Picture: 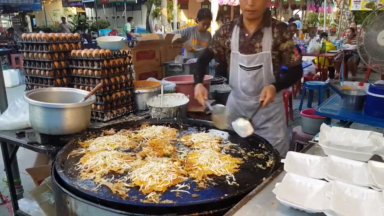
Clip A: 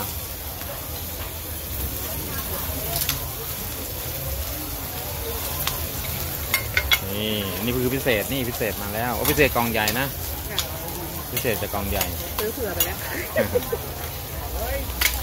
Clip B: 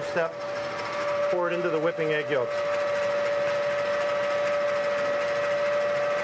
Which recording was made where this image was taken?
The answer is A